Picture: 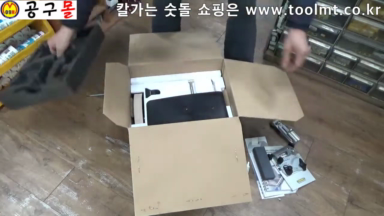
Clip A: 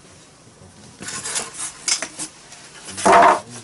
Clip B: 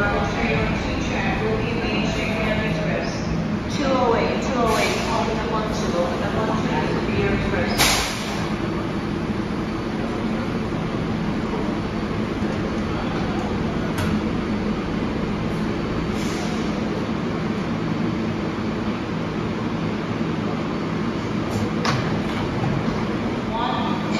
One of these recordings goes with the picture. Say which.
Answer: A